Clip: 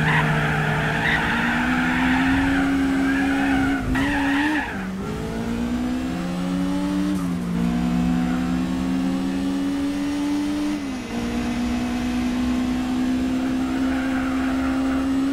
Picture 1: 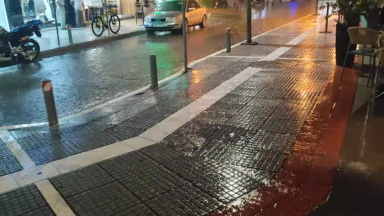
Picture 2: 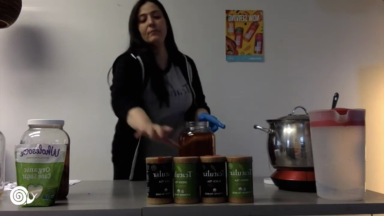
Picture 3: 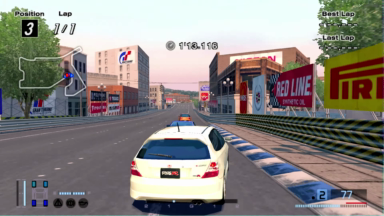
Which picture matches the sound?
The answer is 3